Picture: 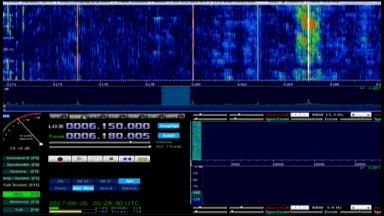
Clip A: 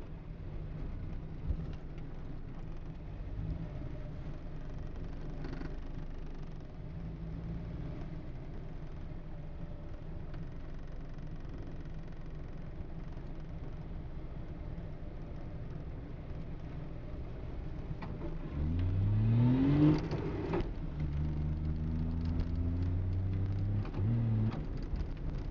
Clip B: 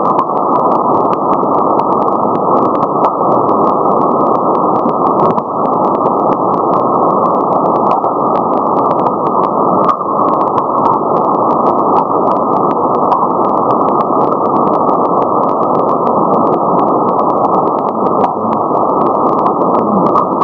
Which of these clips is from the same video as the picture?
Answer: B